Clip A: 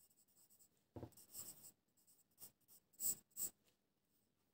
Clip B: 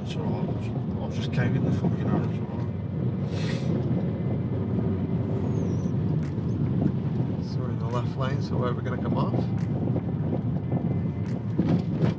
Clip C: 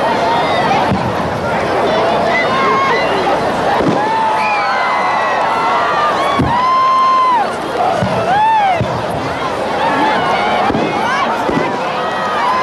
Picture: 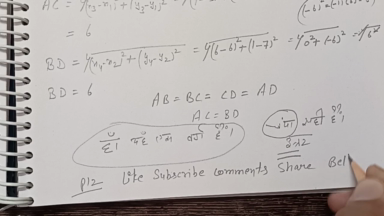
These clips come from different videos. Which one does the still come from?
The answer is A